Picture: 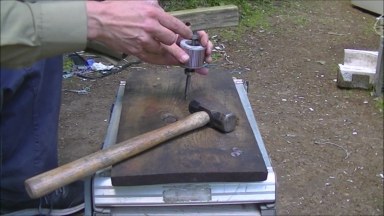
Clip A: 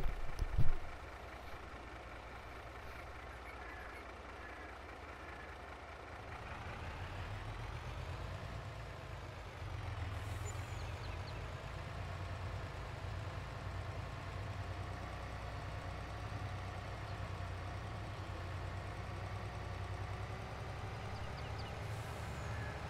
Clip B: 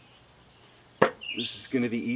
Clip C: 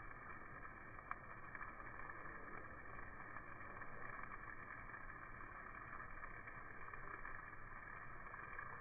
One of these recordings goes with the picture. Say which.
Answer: B